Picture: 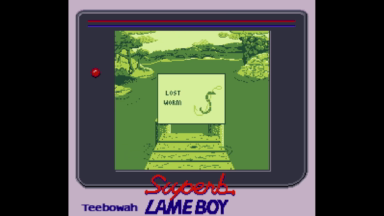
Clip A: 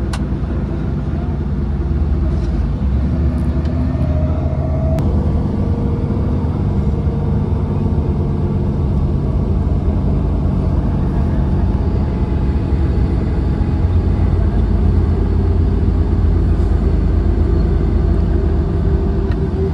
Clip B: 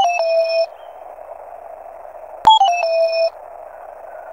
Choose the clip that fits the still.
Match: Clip B